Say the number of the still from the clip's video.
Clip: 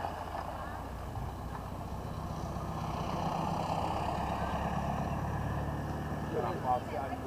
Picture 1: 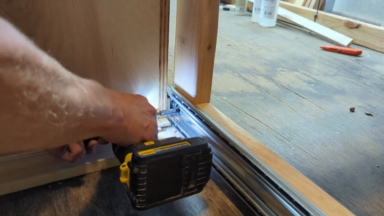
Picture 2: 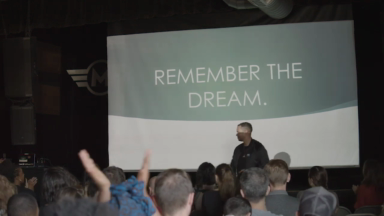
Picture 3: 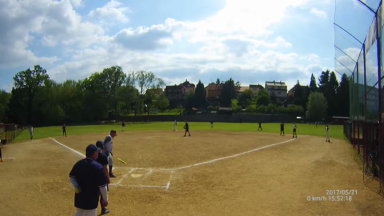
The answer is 3